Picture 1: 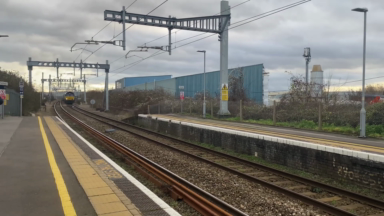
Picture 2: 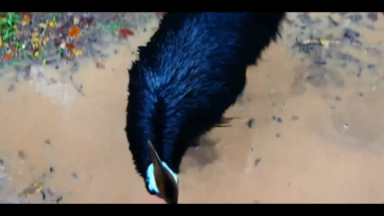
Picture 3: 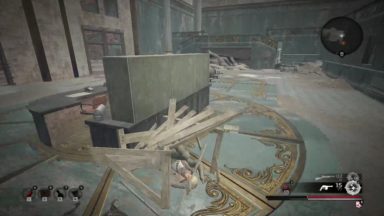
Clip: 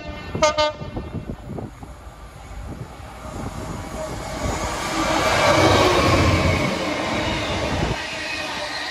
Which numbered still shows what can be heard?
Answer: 1